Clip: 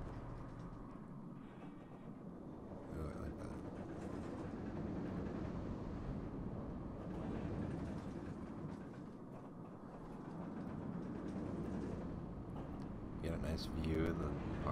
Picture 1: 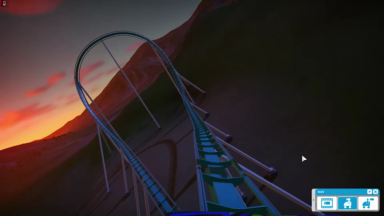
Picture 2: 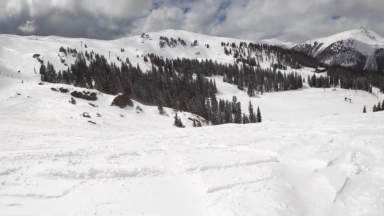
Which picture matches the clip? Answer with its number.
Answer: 1